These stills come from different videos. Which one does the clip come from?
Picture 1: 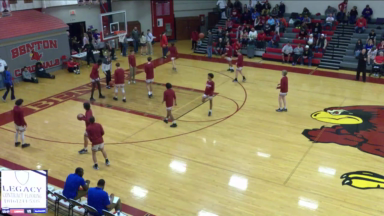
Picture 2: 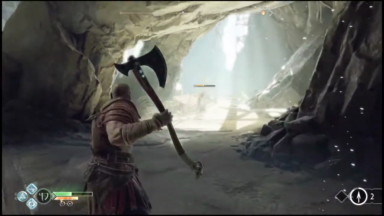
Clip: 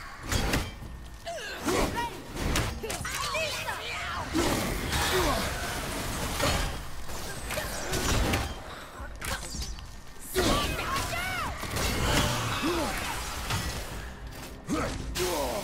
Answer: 2